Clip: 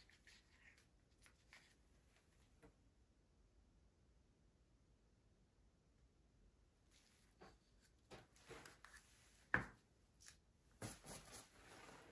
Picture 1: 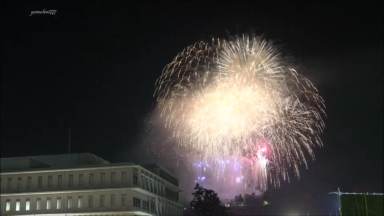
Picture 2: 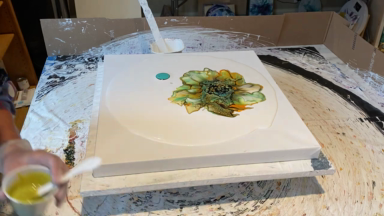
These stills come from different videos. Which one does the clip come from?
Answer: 2